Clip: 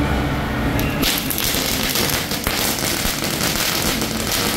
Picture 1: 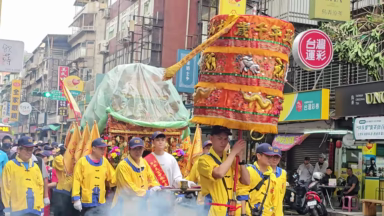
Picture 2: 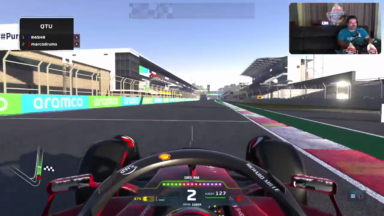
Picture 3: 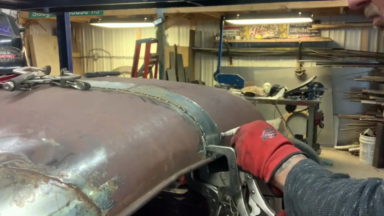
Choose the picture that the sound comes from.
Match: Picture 1